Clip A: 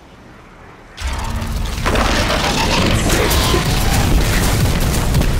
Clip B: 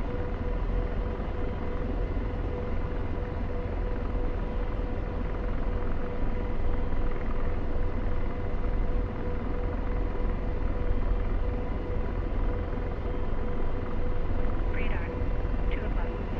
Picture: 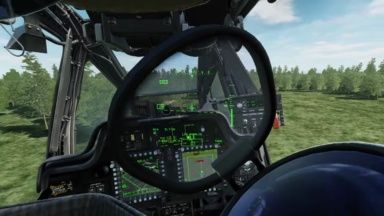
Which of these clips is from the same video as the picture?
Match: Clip B